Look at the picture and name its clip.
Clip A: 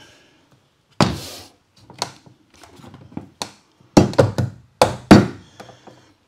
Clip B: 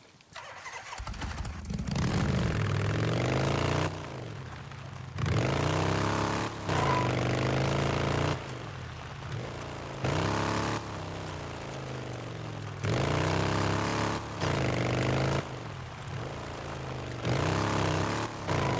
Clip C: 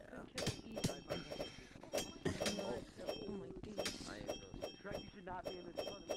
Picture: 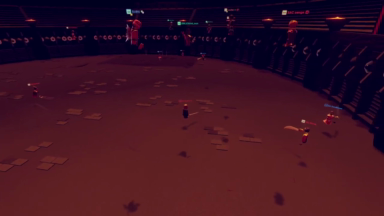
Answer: C